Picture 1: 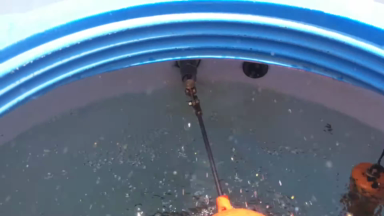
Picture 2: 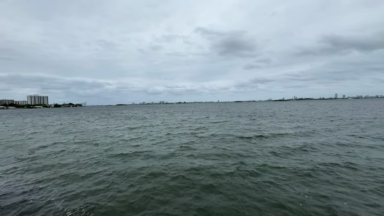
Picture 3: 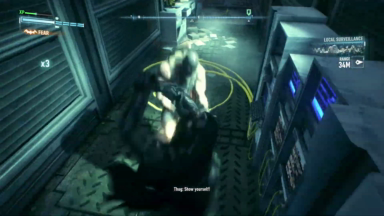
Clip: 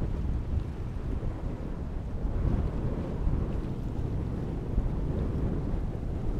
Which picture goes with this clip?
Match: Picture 2